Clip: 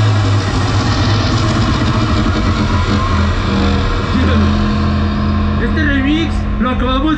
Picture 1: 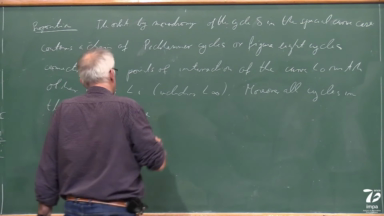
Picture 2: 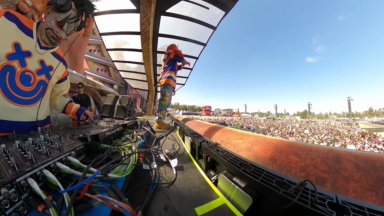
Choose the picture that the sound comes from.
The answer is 2